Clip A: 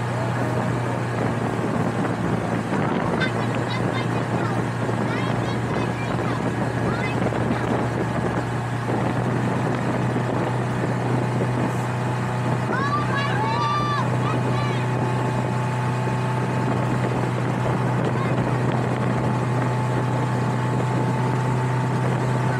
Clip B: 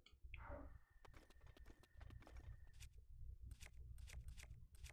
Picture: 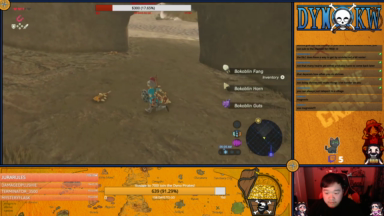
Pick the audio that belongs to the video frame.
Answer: B